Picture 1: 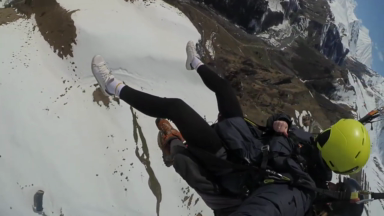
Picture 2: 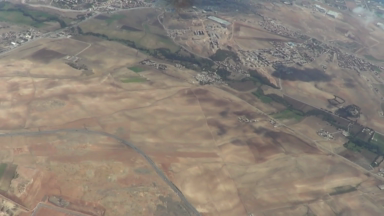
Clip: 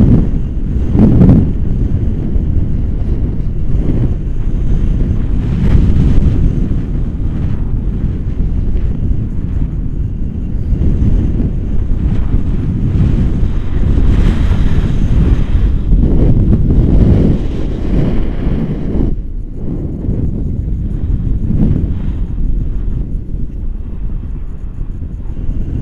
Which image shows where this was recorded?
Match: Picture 1